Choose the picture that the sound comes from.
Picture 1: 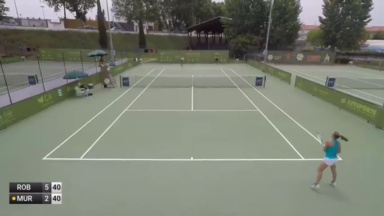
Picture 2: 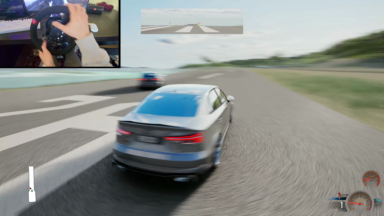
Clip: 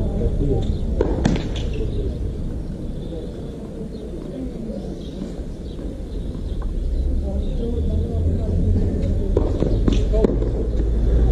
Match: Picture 1